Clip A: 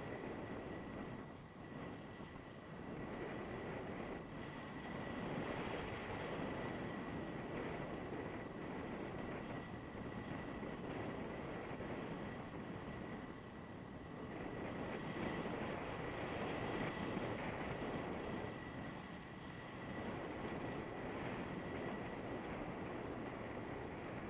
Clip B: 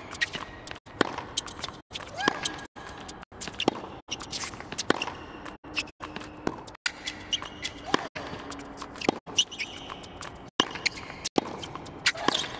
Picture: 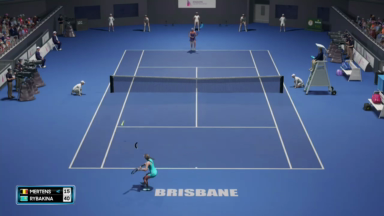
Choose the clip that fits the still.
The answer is B